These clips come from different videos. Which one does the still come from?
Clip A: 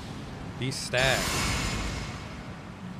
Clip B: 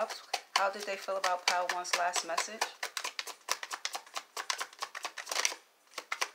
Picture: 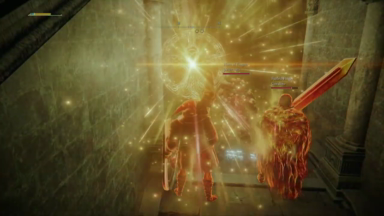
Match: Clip A